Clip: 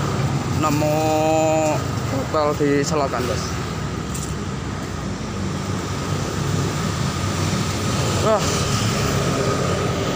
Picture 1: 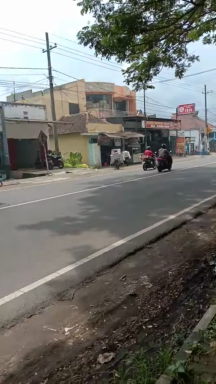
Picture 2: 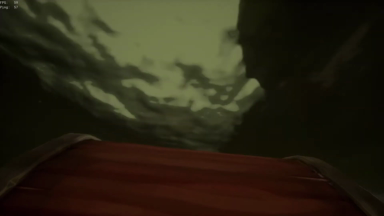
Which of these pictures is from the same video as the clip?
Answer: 1